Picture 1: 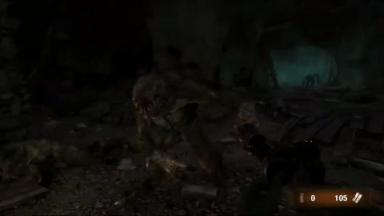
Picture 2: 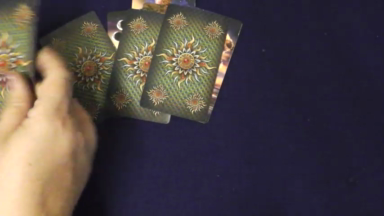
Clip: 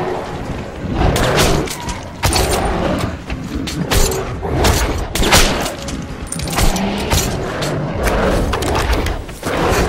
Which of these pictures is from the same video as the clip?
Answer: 1